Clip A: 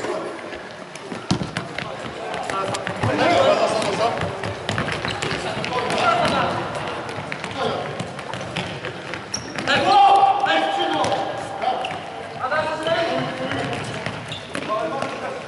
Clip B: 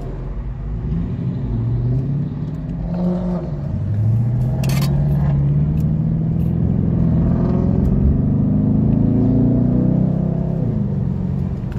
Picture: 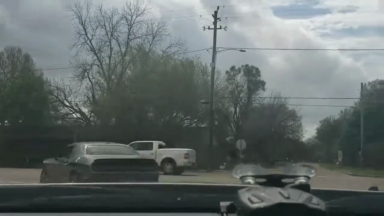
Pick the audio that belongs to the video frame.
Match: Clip B